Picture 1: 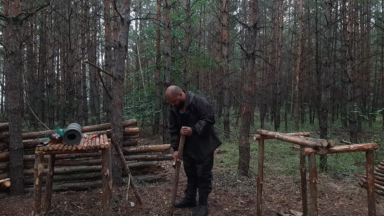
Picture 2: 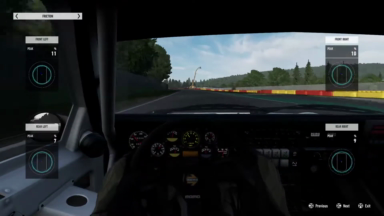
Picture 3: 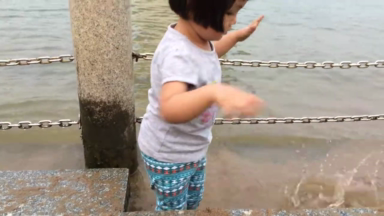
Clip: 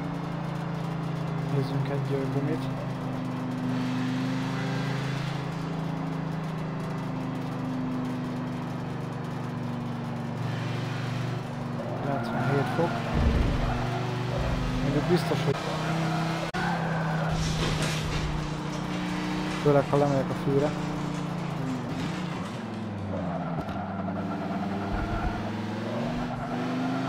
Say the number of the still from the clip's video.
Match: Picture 2